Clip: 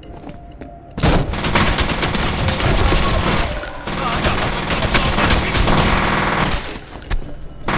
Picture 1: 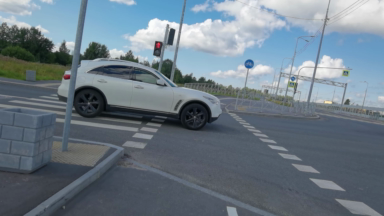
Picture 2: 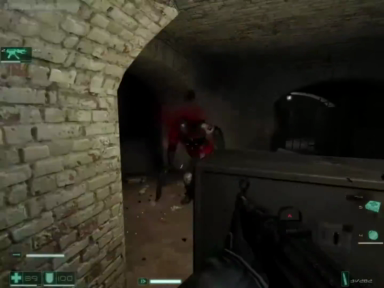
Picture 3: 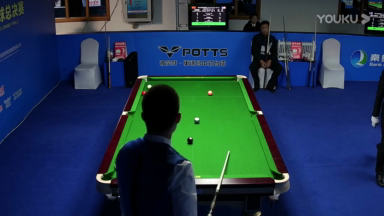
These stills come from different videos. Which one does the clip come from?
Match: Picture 2